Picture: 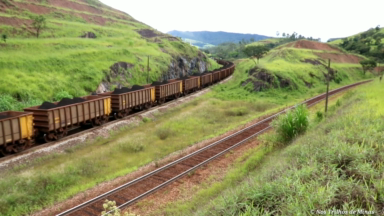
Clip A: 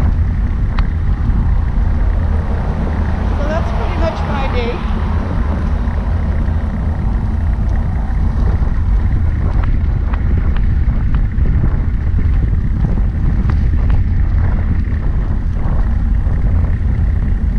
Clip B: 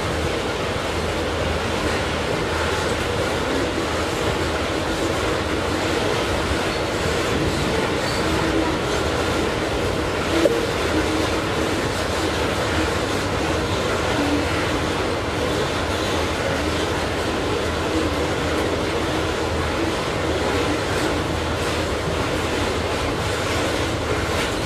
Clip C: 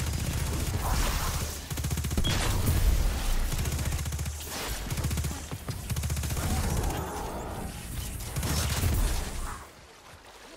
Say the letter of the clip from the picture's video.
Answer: B